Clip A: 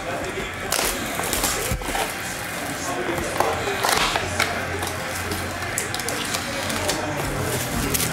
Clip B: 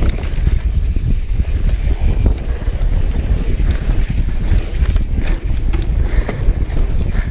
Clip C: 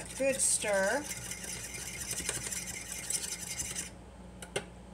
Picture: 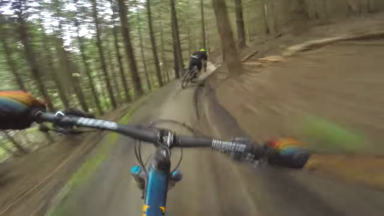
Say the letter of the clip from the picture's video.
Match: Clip B